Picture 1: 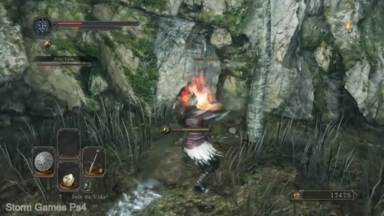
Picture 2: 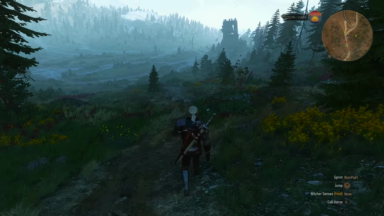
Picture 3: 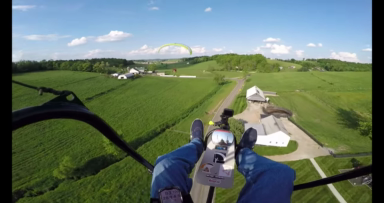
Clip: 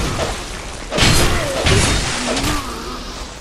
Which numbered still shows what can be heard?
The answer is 1